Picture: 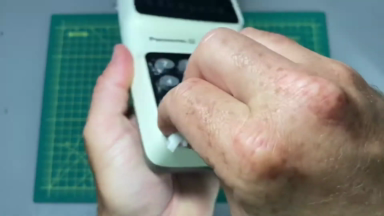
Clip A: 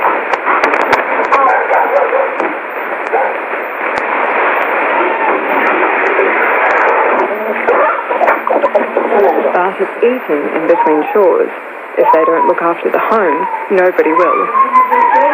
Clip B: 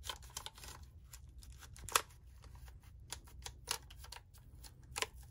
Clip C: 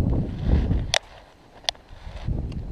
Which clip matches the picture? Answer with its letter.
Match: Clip B